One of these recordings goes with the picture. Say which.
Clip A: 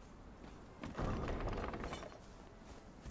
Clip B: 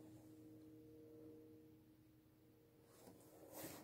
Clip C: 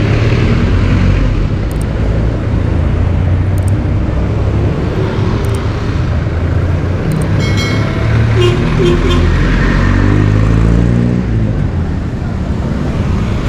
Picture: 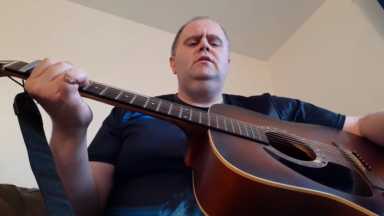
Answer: B